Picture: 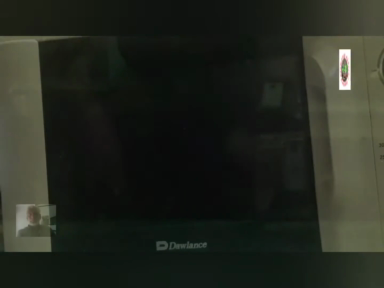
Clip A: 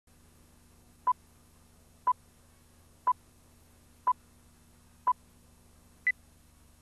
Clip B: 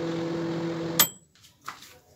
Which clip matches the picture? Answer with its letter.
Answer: B